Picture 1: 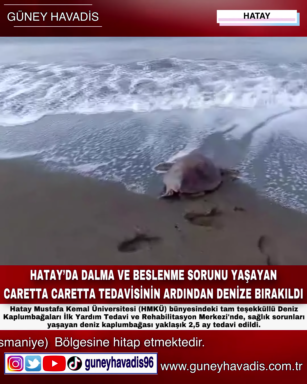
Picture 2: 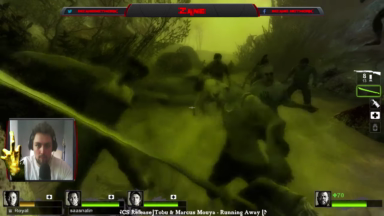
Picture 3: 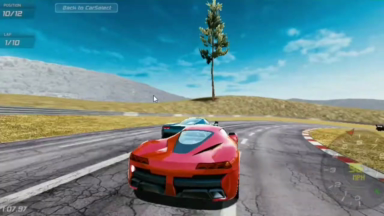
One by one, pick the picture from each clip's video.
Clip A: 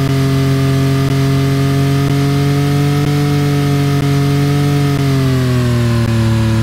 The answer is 3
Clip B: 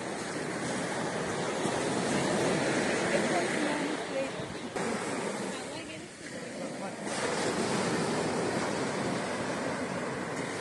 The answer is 1